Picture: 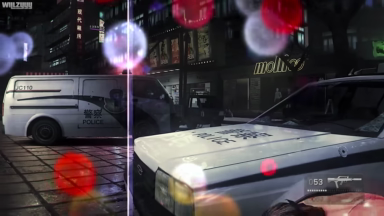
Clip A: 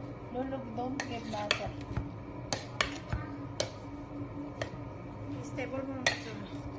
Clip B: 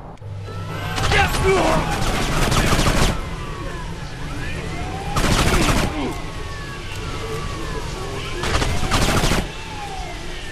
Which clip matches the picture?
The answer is B